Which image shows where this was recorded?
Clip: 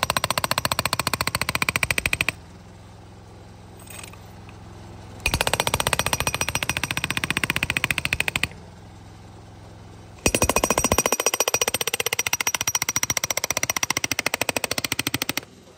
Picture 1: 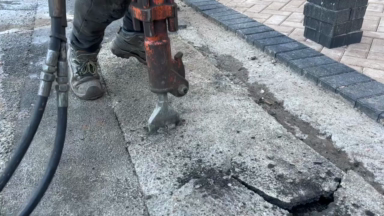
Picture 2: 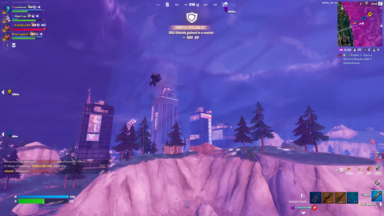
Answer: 1